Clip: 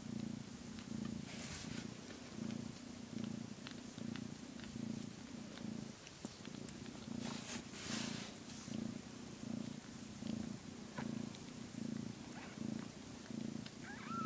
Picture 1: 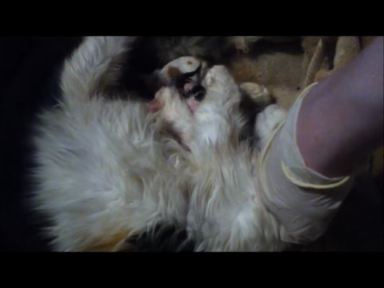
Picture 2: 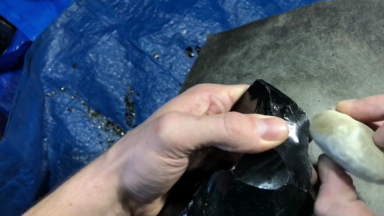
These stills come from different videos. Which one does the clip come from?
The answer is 1